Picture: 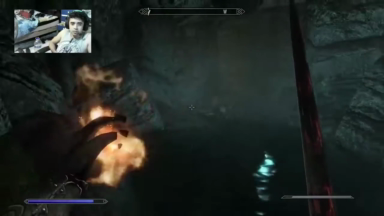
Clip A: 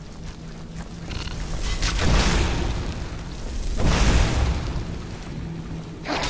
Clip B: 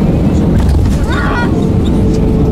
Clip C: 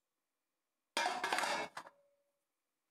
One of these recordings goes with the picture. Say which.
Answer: A